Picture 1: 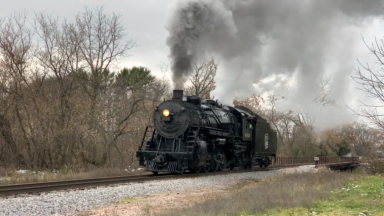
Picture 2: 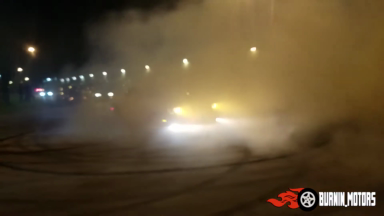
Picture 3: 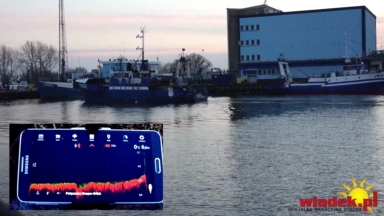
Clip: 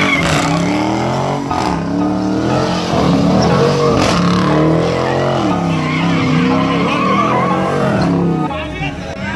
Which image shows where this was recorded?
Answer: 2